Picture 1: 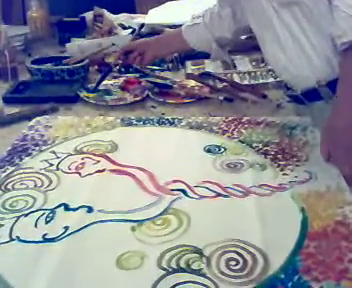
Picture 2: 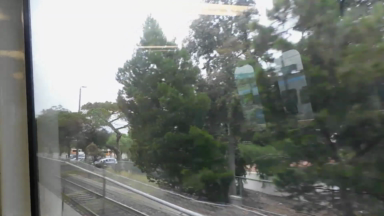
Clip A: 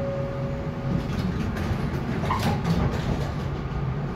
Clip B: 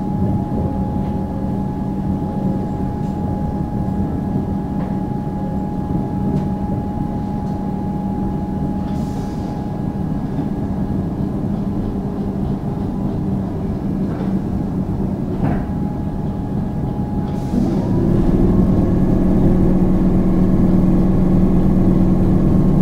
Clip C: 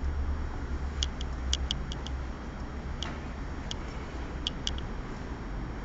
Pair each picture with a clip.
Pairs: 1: C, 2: B